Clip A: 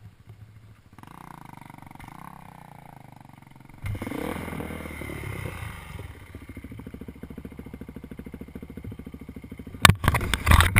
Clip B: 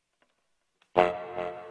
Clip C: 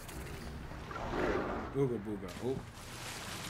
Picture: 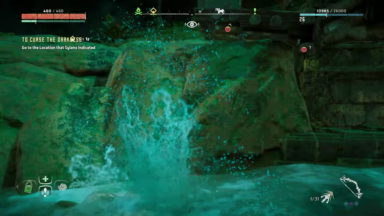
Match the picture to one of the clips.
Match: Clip C